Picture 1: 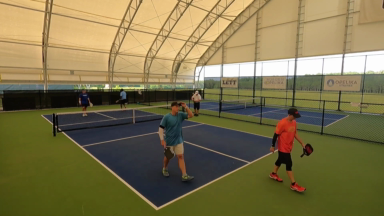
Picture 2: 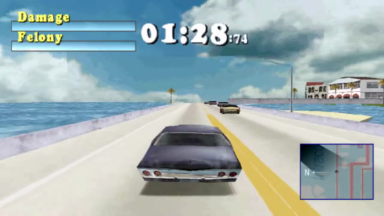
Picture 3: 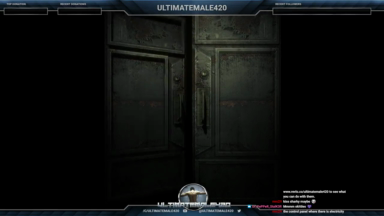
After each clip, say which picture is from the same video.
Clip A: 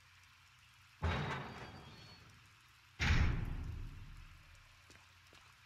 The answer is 3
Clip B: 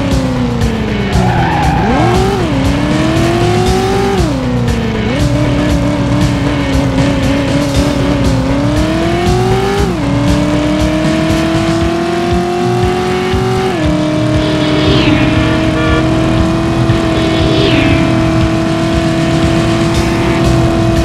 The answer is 2